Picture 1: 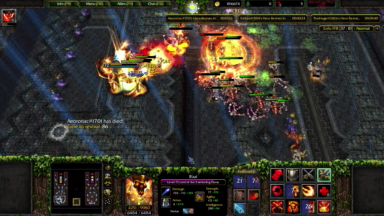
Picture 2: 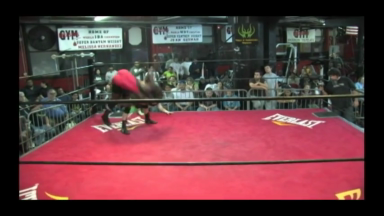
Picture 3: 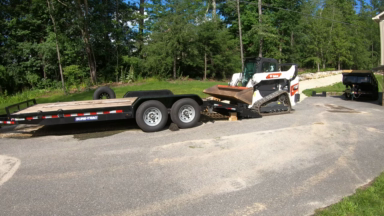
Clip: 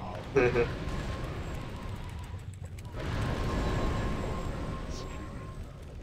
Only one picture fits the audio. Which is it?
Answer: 1